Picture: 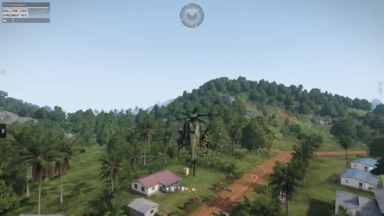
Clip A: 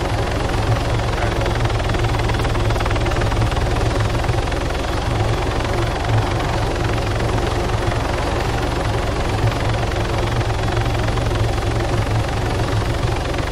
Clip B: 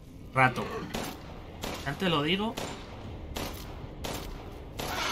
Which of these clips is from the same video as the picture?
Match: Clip A